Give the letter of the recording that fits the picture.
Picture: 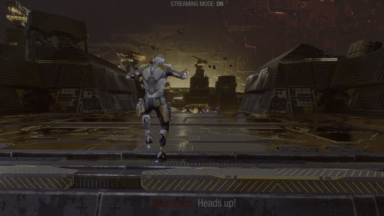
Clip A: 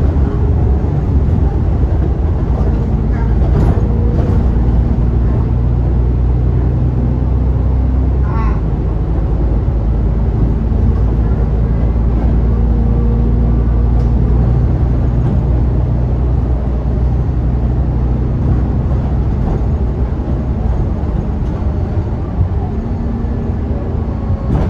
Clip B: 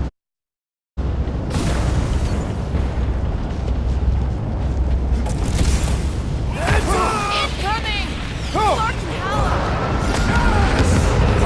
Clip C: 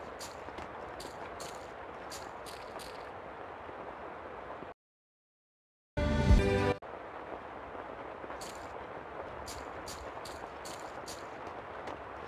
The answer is B